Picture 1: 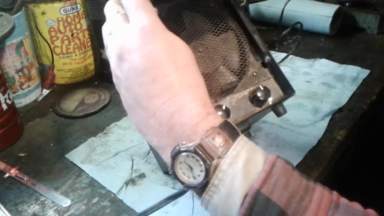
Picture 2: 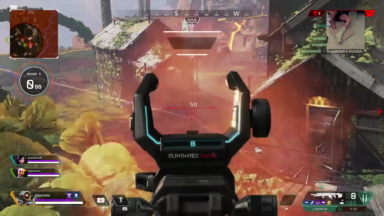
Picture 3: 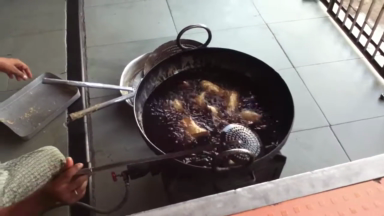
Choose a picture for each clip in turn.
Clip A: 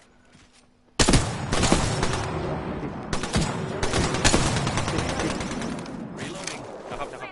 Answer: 2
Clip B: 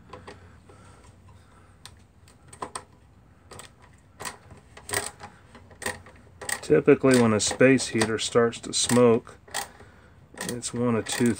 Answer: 1